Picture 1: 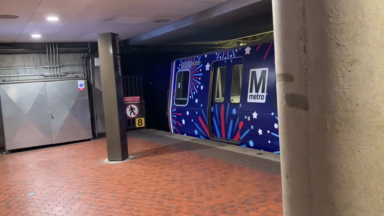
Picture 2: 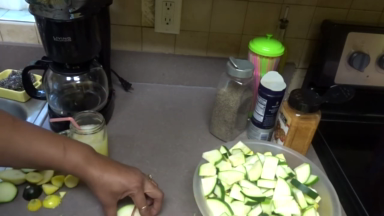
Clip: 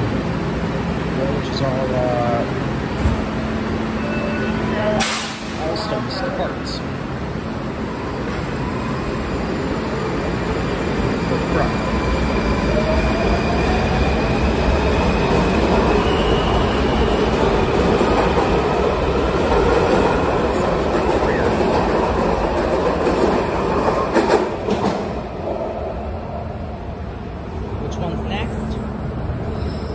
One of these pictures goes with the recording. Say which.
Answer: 1